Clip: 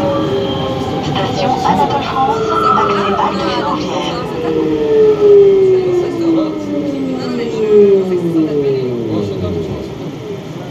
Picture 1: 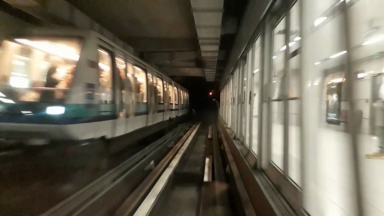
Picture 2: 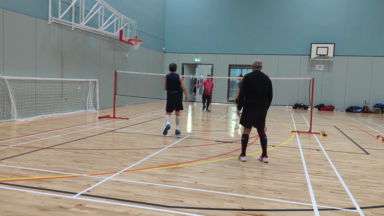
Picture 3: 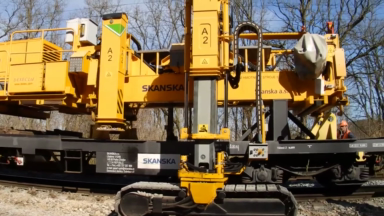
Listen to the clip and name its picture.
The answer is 1